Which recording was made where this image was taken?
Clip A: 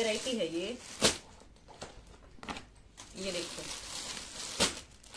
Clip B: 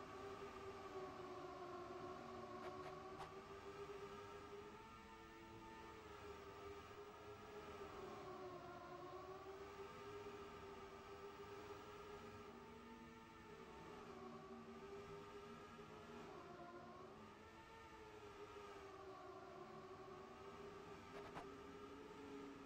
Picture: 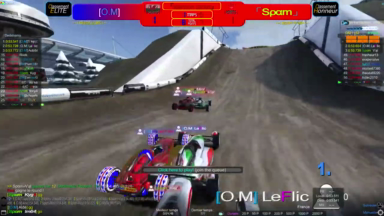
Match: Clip B